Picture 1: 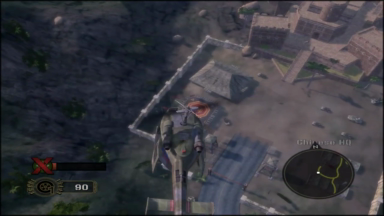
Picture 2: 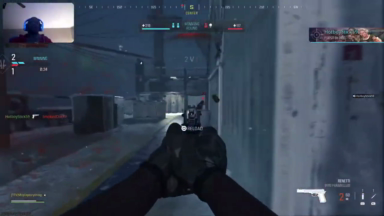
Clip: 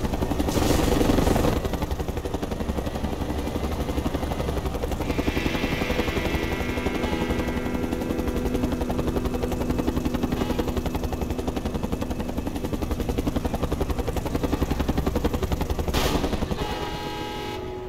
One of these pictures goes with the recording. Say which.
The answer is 1